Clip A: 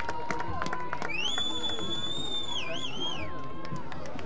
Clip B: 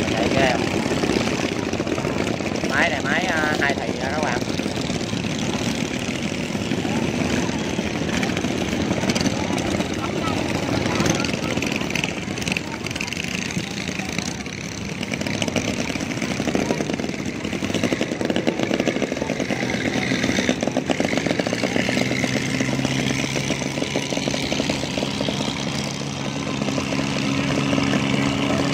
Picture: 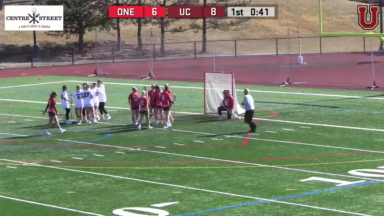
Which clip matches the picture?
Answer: A